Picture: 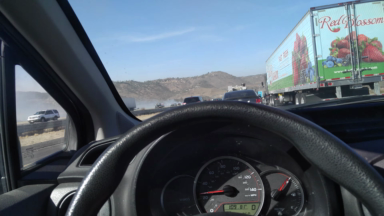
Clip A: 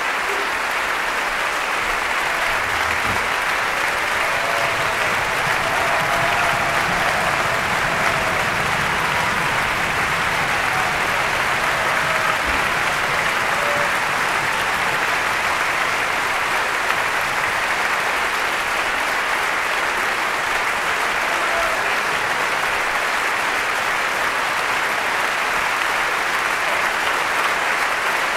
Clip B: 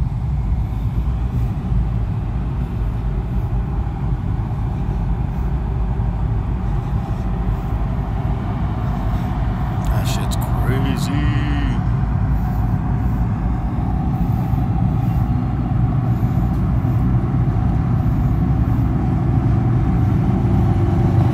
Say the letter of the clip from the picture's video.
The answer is B